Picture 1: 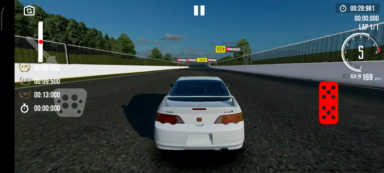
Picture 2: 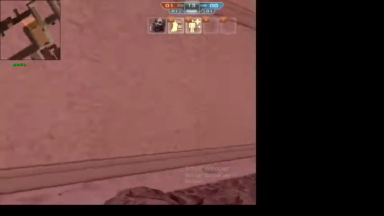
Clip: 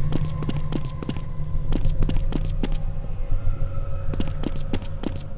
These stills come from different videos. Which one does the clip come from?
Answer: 2